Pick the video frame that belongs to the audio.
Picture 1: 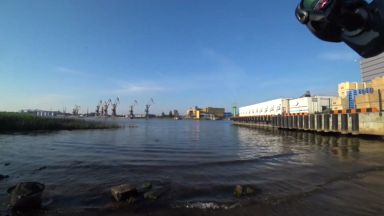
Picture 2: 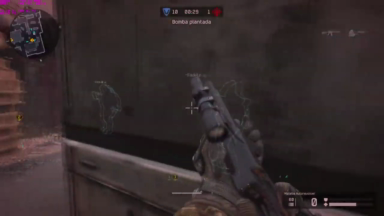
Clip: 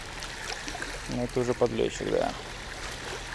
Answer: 1